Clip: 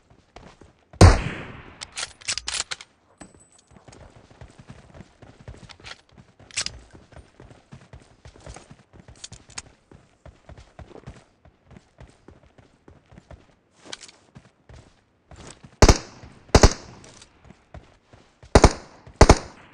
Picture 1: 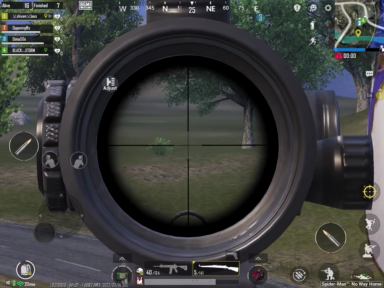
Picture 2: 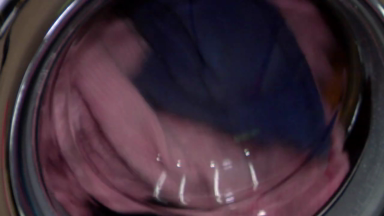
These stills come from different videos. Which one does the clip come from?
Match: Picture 1